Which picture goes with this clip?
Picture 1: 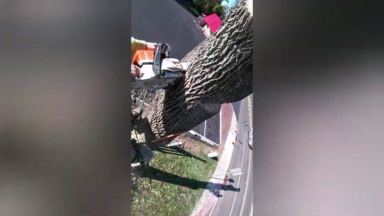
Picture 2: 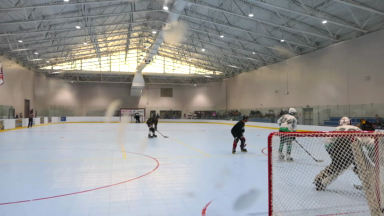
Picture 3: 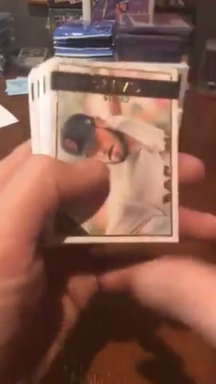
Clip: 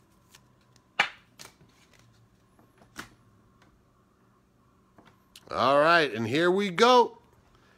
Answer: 3